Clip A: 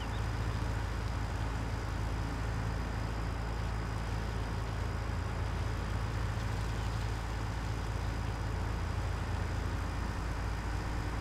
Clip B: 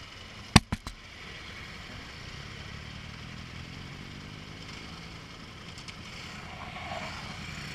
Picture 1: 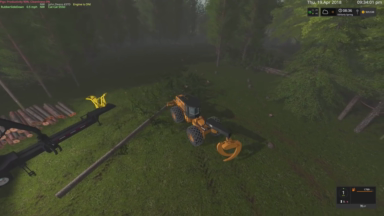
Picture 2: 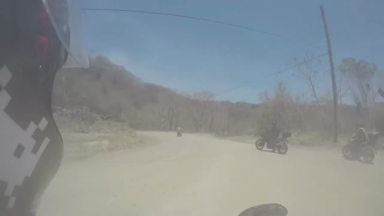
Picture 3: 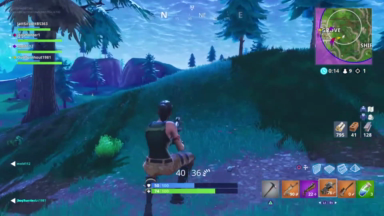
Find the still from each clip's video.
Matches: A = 1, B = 2